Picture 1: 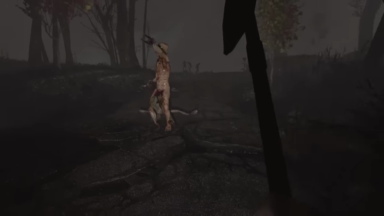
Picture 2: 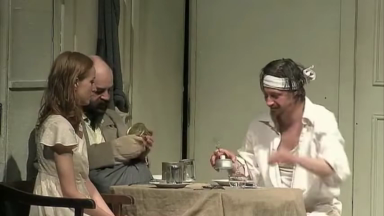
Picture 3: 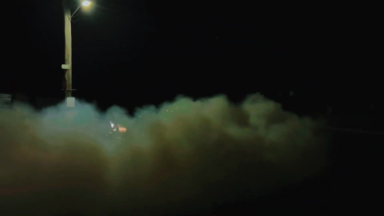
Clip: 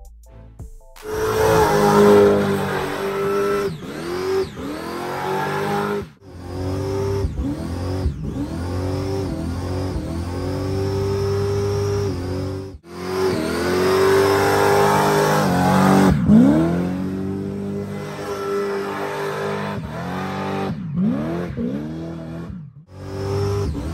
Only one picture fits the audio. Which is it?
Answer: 3